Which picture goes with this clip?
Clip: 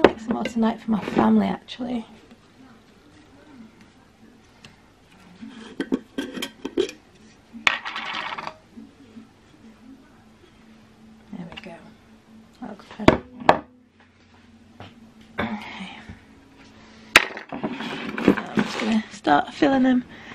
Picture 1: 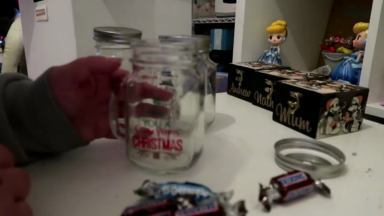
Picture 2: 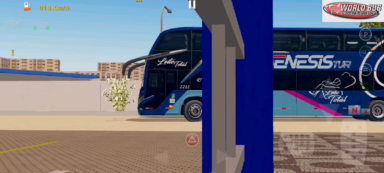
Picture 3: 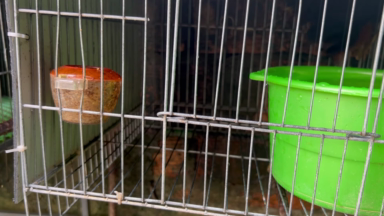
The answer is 1